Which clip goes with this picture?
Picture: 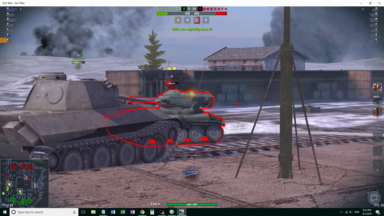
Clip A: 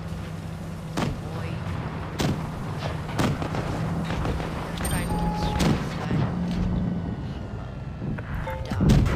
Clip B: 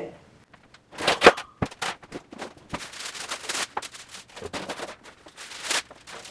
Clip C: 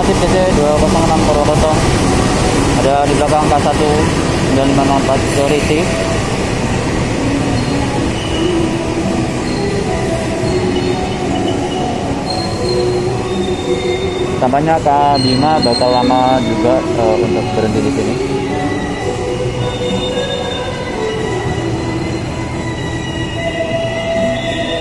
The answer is A